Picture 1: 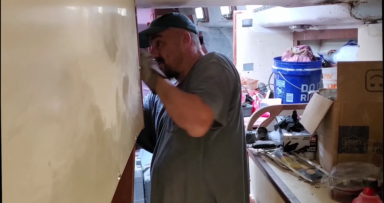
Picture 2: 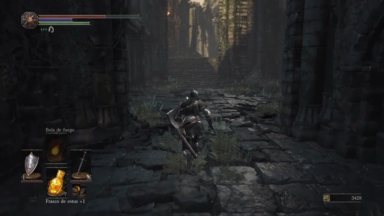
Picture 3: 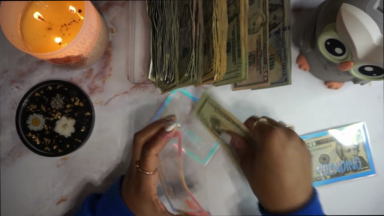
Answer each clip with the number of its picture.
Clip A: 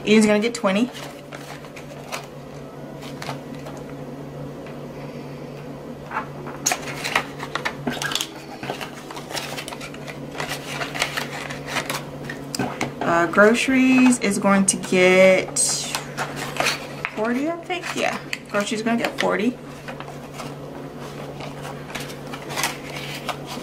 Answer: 3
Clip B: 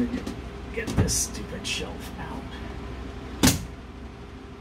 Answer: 1